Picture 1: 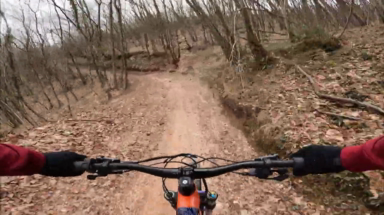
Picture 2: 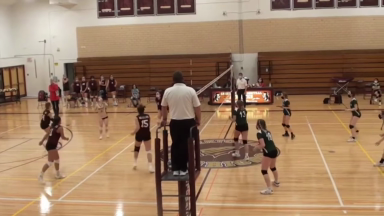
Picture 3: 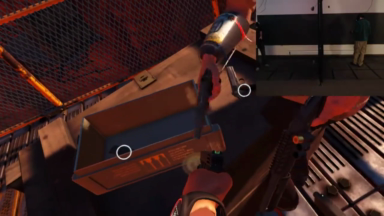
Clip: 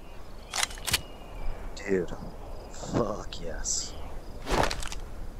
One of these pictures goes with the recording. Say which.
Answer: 3